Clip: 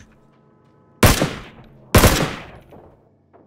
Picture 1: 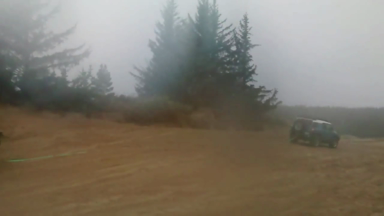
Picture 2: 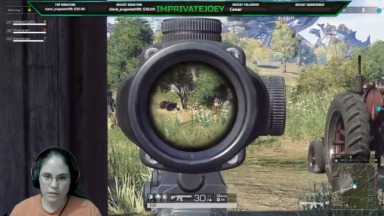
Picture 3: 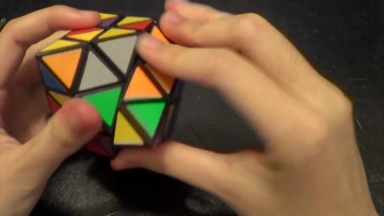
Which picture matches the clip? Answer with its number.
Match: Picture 2